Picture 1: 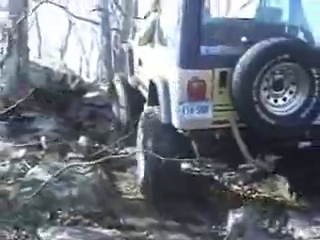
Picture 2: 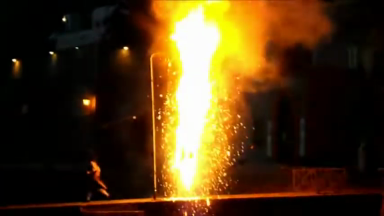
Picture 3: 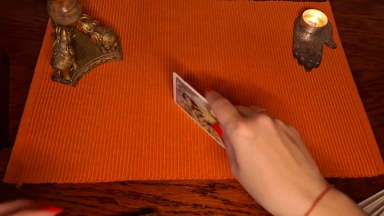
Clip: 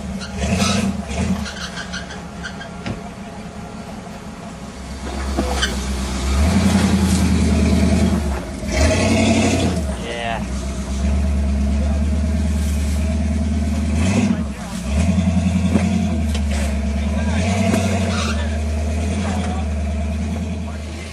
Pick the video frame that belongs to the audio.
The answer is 1